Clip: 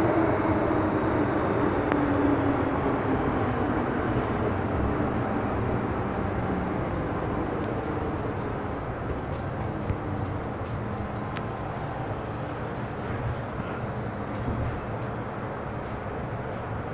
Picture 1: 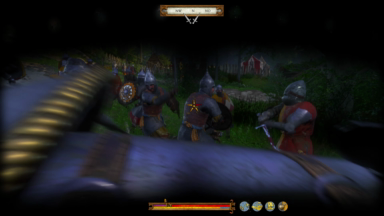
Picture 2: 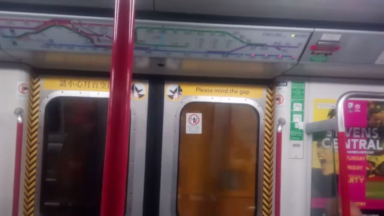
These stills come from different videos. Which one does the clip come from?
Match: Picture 2